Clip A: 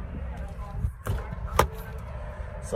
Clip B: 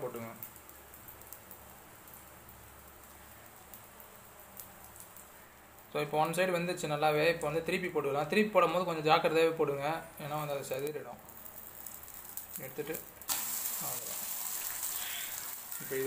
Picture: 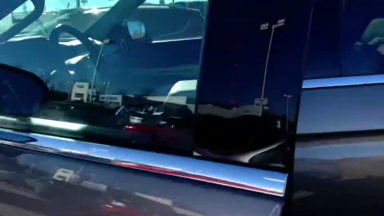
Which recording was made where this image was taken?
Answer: A